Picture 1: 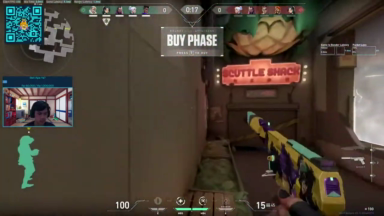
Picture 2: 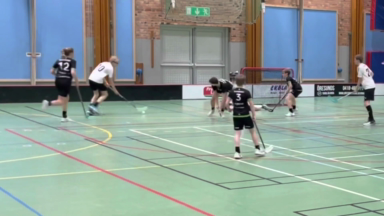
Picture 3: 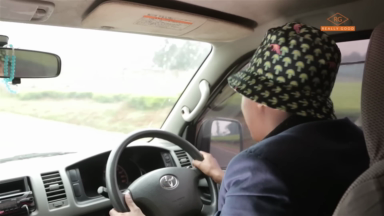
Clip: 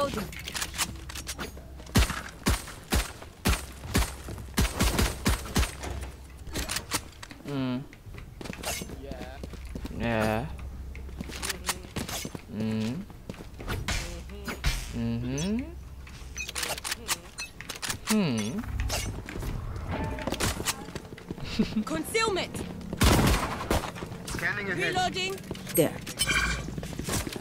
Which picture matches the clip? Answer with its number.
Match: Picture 1